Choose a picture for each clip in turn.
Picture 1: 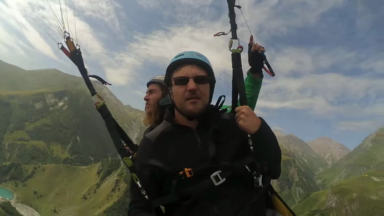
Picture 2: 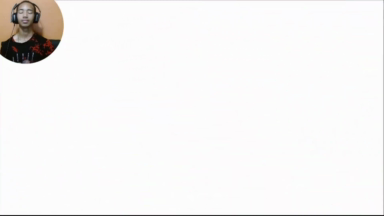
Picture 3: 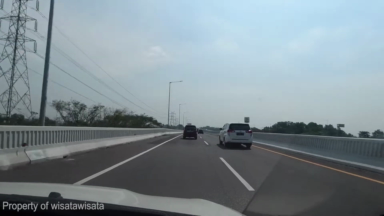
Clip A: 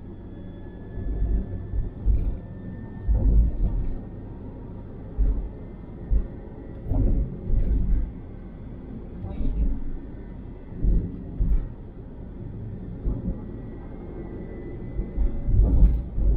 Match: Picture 3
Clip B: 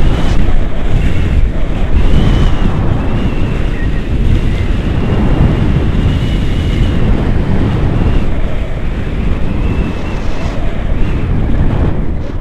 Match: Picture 1